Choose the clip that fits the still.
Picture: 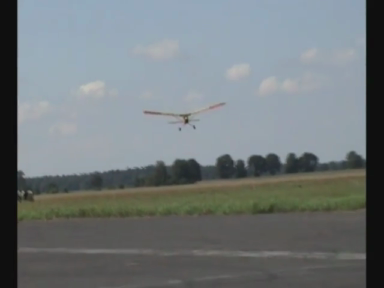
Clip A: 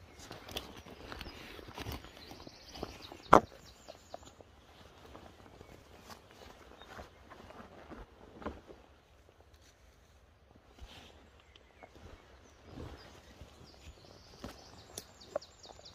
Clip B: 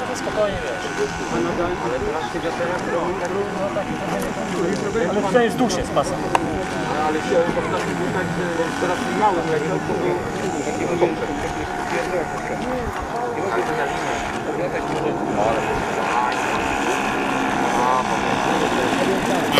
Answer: B